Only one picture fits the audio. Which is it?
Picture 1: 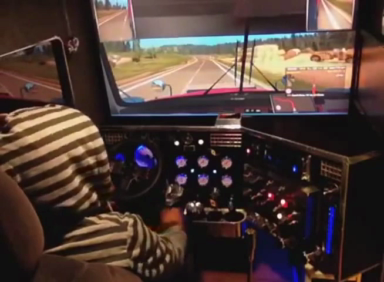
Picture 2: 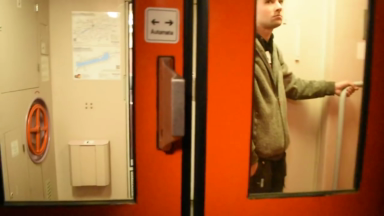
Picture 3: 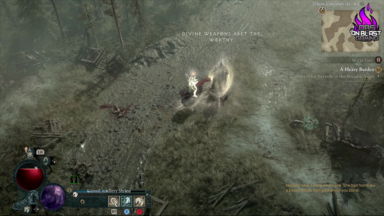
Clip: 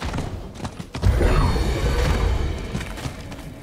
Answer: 3